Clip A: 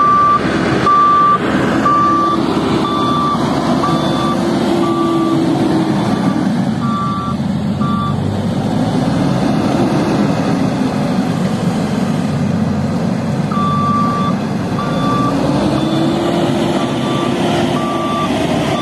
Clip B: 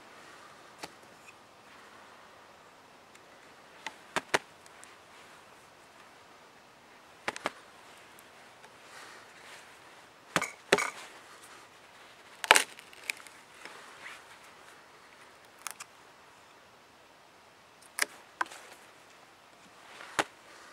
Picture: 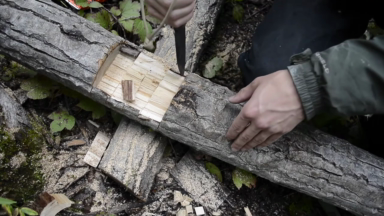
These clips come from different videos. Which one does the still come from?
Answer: B